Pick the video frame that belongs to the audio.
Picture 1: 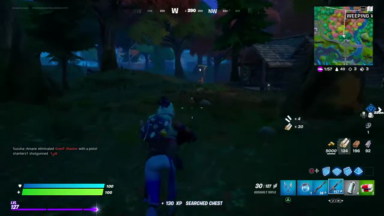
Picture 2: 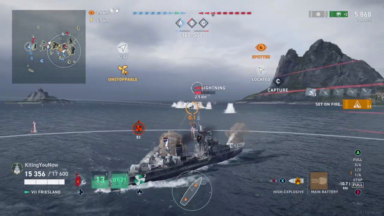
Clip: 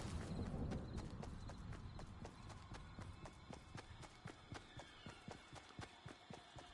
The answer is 1